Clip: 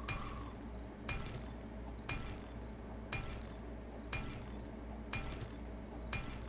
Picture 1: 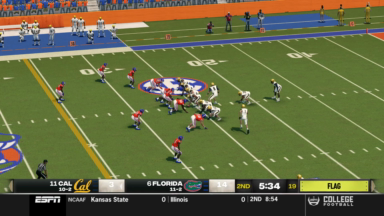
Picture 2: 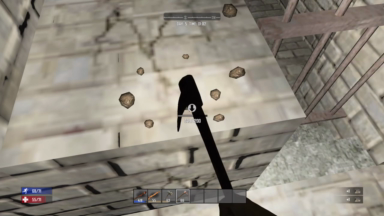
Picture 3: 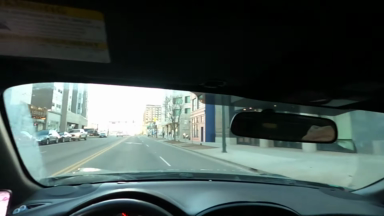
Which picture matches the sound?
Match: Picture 2